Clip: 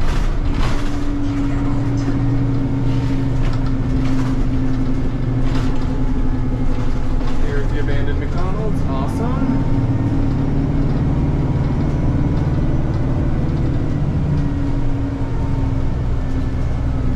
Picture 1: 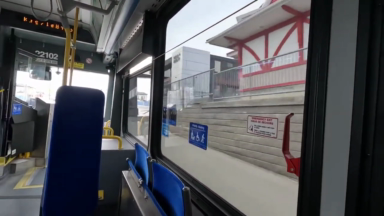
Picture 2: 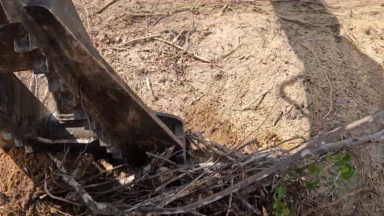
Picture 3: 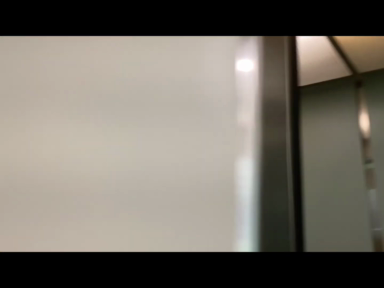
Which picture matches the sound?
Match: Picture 1